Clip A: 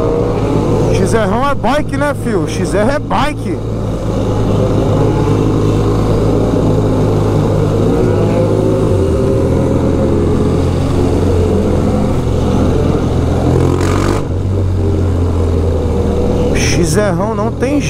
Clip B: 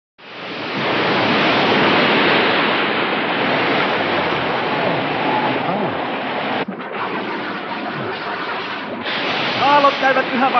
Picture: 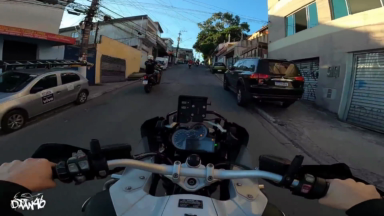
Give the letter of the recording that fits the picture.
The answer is A